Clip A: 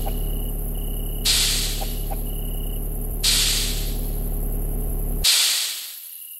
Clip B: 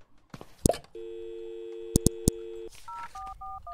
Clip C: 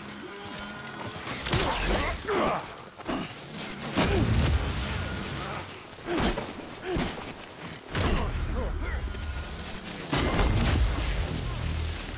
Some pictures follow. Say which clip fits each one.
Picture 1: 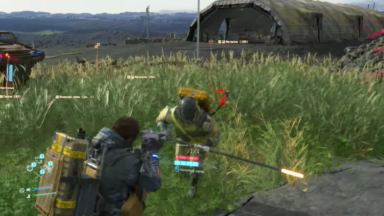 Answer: C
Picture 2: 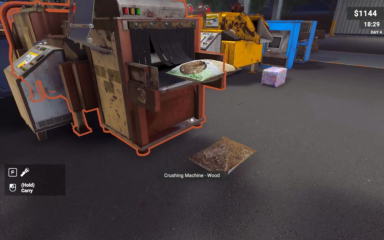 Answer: A